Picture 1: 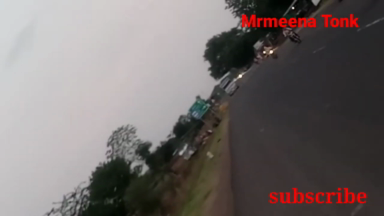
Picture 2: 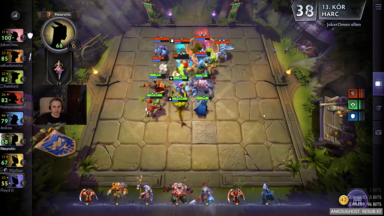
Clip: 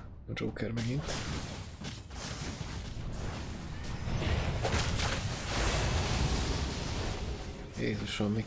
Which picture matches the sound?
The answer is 2